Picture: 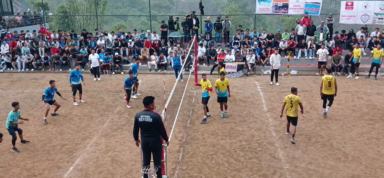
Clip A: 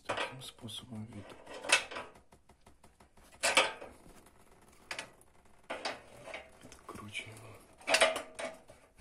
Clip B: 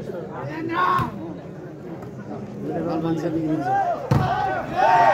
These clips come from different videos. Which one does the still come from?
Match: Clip B